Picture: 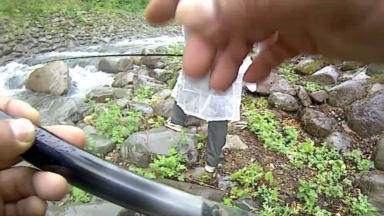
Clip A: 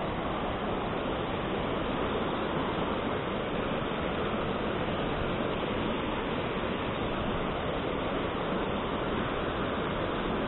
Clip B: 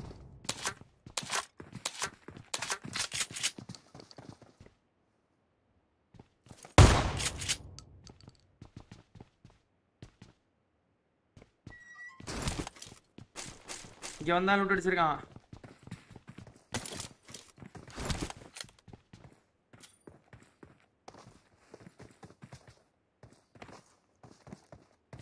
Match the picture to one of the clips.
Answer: A